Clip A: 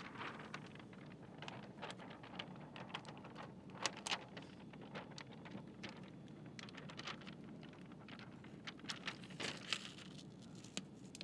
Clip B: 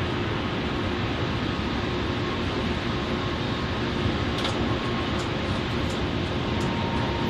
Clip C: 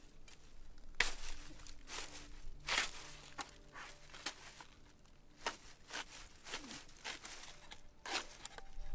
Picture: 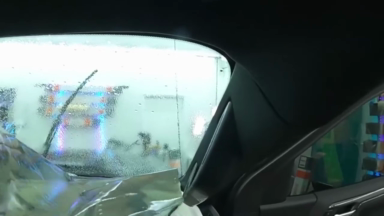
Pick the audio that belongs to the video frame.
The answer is A